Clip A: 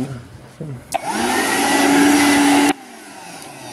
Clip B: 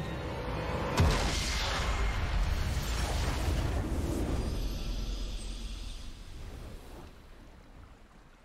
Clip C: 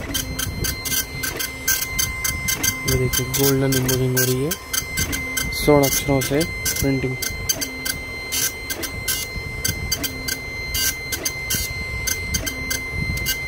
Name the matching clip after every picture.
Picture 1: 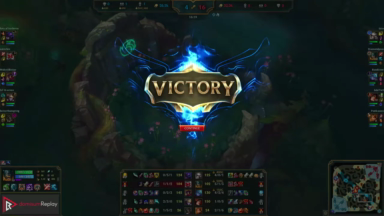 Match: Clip B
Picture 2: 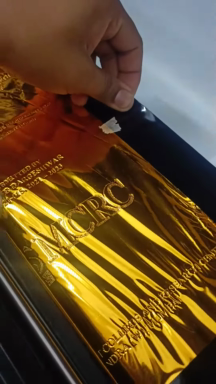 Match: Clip C